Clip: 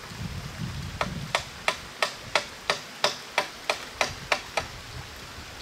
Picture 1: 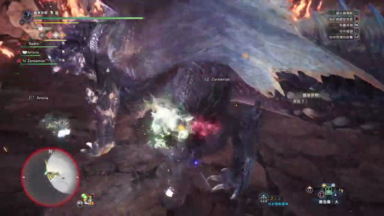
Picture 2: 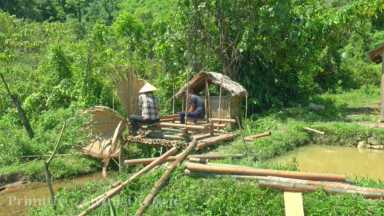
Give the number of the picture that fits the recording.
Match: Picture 2